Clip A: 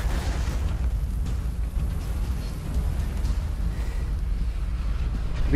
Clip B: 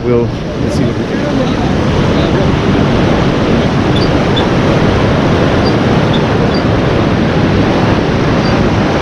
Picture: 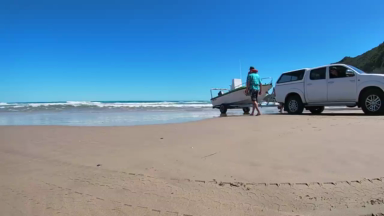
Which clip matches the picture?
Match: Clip B